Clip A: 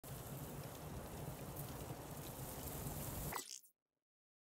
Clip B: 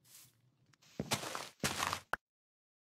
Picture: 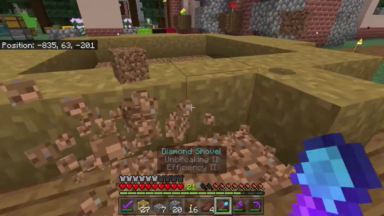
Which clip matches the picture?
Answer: B